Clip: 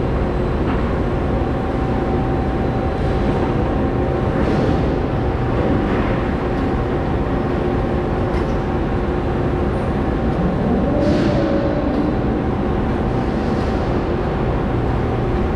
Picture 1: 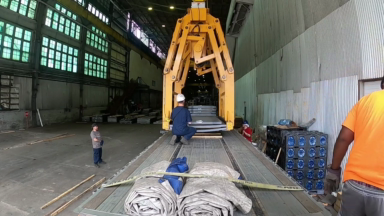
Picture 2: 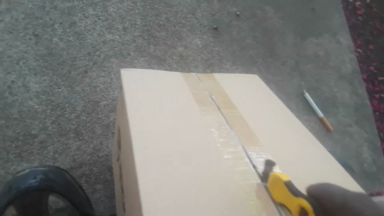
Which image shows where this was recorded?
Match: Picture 1